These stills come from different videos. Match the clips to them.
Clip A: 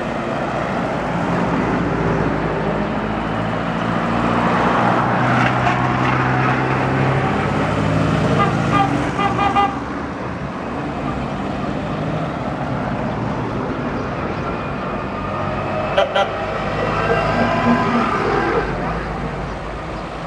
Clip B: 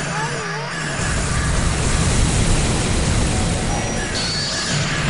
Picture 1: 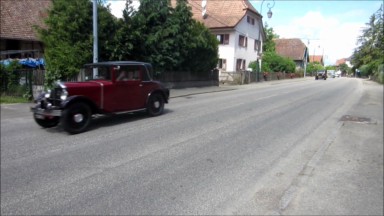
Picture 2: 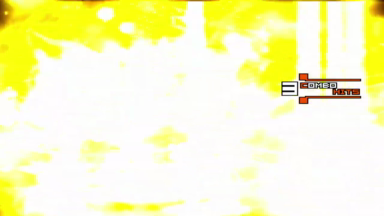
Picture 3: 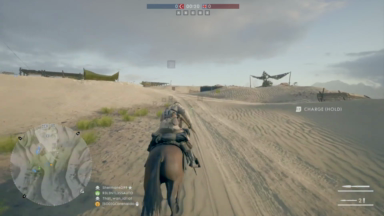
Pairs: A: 1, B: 2